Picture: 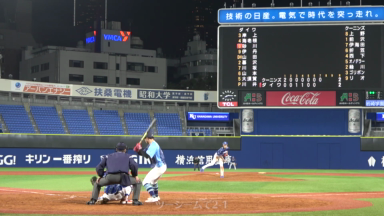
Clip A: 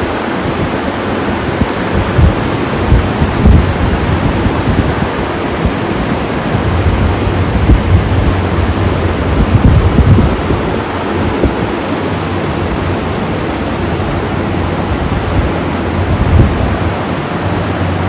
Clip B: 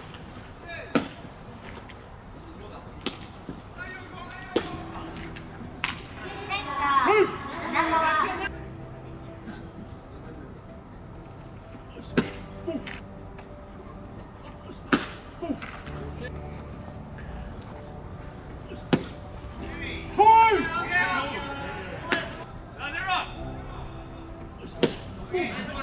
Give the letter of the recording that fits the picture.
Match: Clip B